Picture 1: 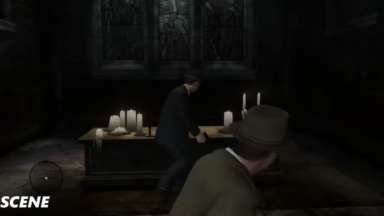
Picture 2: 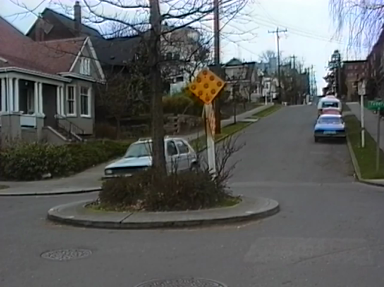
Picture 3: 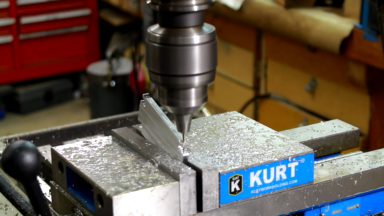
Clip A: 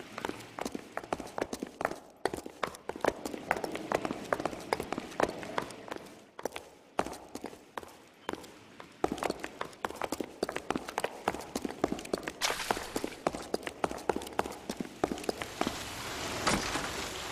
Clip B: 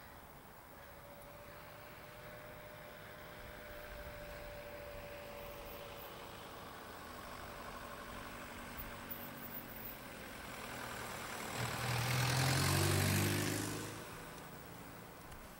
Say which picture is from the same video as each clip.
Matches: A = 1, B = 2